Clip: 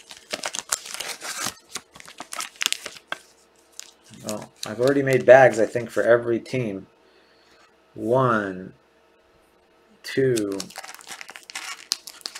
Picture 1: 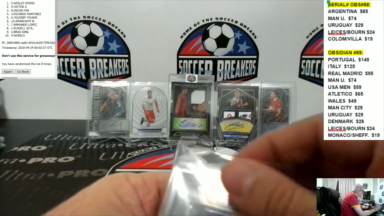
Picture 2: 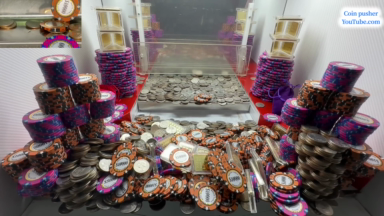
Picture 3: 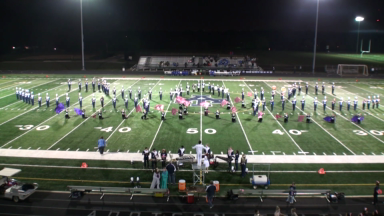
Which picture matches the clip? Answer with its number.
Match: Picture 1